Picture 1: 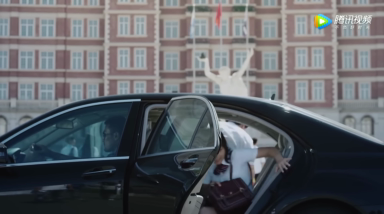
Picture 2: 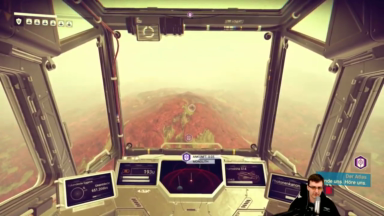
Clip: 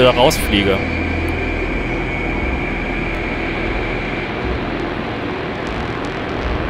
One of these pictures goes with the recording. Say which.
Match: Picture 2